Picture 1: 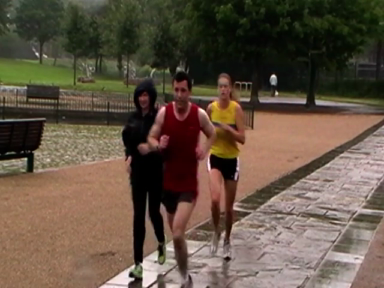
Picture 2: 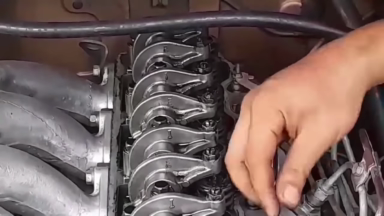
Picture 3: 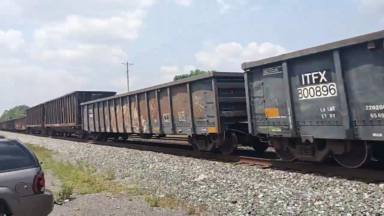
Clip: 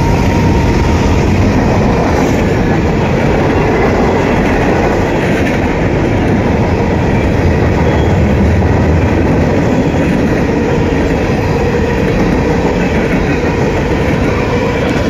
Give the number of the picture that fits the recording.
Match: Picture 3